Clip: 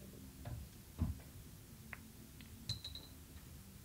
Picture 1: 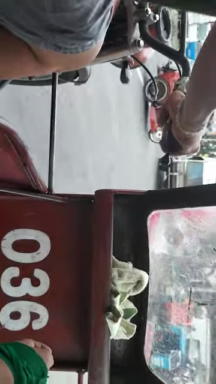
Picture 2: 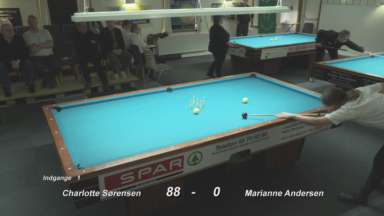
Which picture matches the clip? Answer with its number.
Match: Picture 2